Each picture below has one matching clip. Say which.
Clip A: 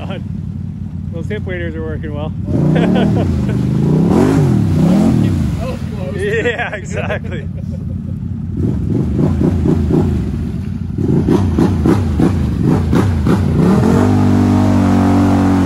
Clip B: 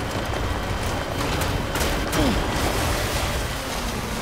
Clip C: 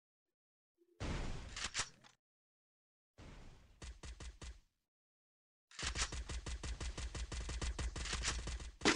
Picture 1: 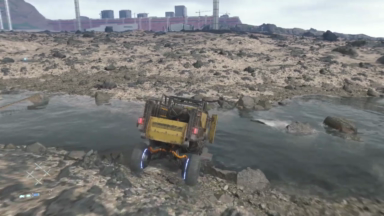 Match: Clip B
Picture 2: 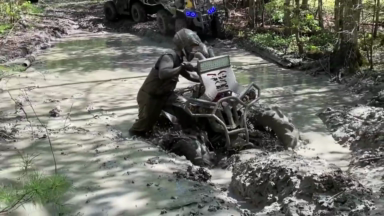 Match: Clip A